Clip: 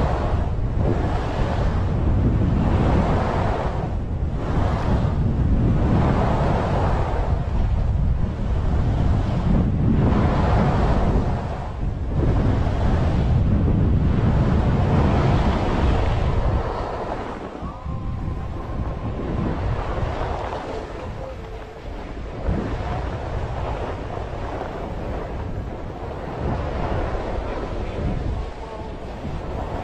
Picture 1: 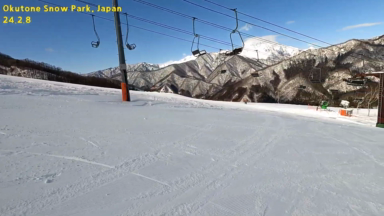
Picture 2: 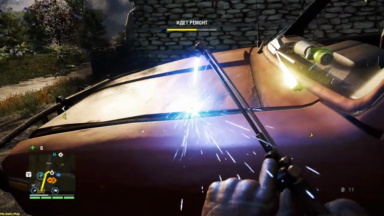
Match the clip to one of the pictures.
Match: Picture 1